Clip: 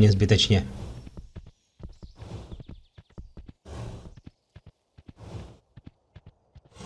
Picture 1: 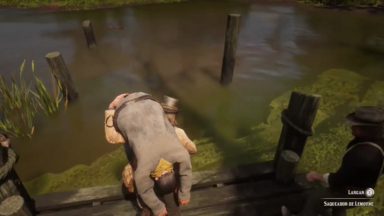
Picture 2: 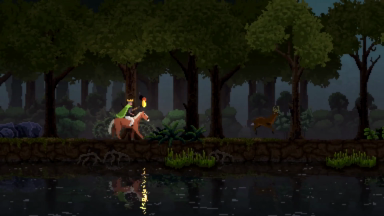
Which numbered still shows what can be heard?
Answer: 2